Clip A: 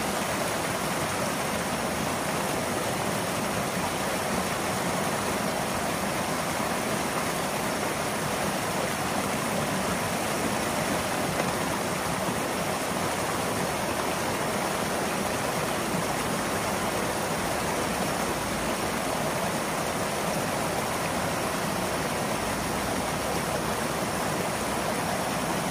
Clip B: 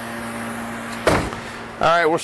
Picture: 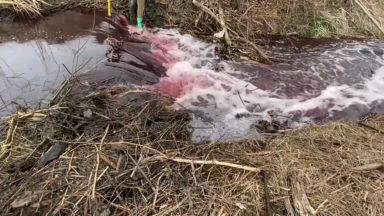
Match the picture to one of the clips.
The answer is A